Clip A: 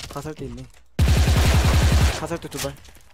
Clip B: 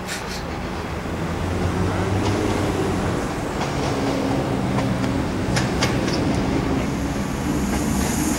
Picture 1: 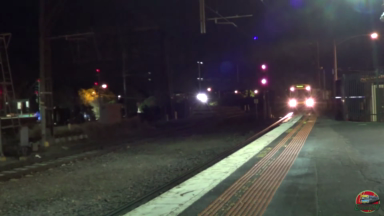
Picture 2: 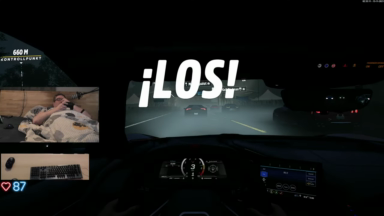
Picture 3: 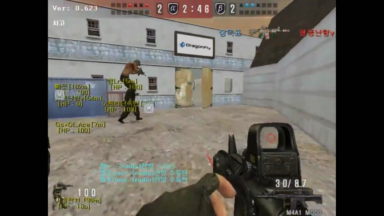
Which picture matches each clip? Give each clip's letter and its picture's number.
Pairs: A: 3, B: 1